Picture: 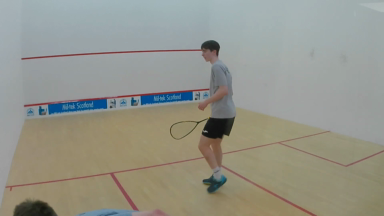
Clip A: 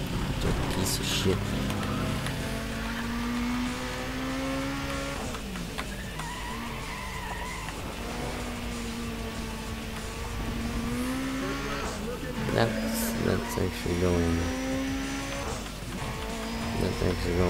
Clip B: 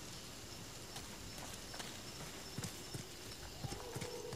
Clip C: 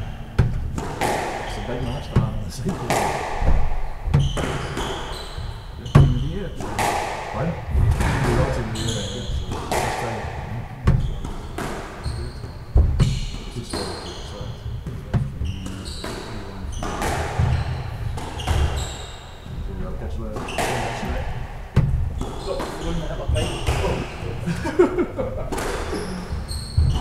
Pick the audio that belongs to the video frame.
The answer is C